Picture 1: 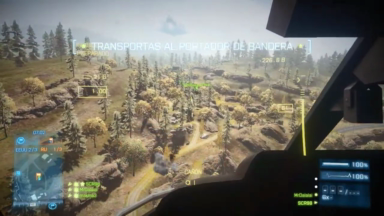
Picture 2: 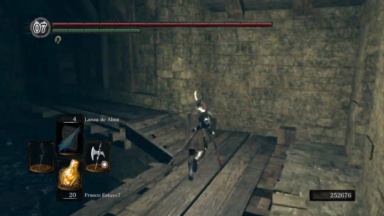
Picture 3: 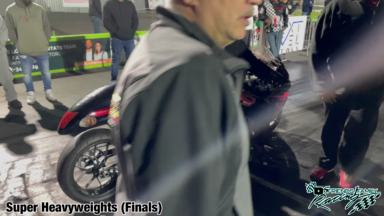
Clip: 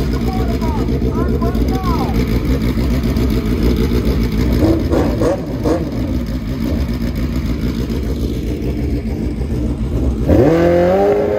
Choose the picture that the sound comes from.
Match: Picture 3